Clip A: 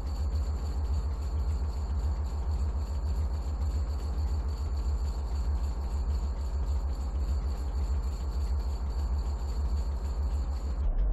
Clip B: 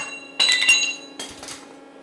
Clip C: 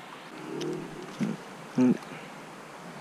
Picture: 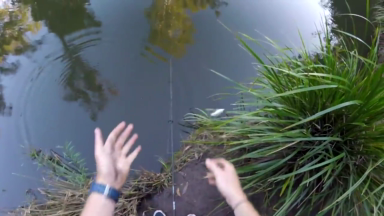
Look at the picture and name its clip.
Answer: C